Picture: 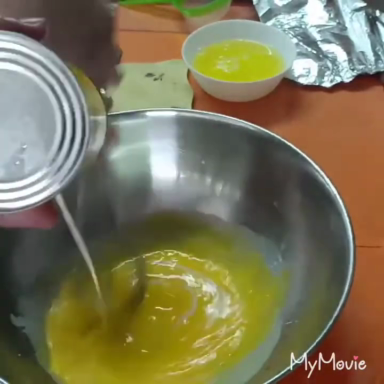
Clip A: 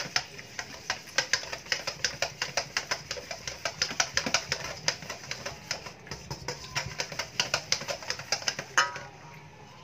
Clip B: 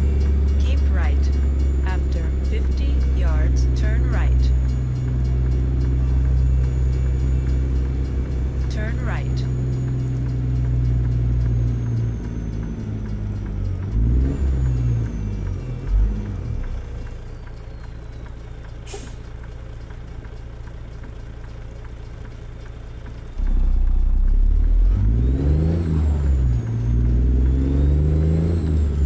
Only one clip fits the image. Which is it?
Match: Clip A